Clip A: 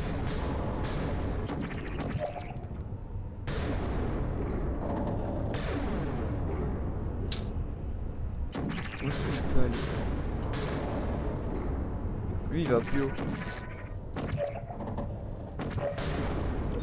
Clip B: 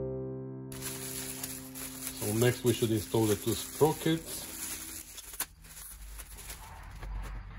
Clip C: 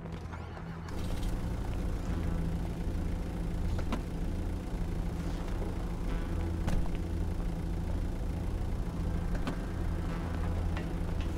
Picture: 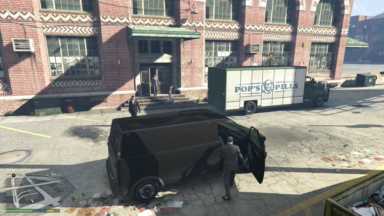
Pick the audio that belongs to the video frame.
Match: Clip C